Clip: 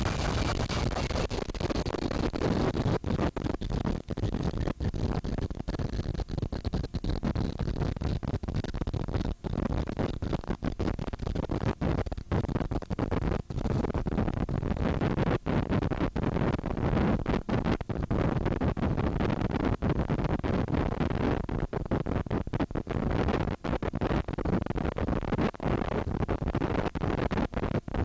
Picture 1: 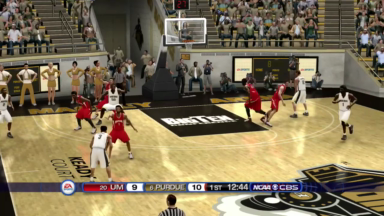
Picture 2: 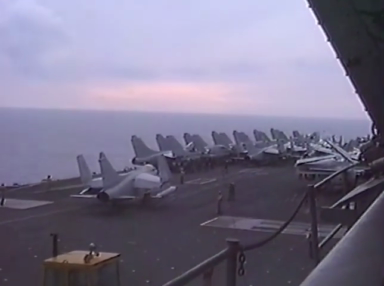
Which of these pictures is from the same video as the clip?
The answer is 2